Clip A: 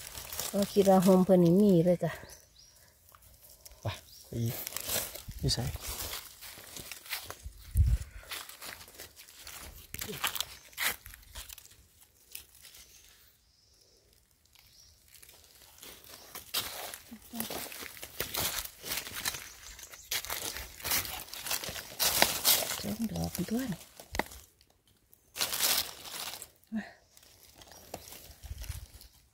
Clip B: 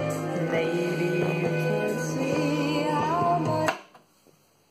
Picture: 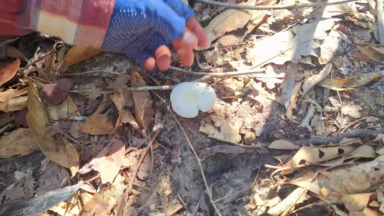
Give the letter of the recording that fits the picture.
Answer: A